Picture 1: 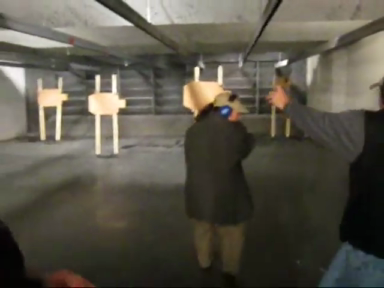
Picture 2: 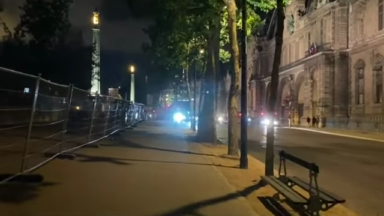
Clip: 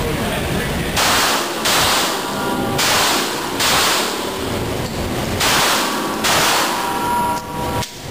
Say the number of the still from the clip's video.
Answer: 1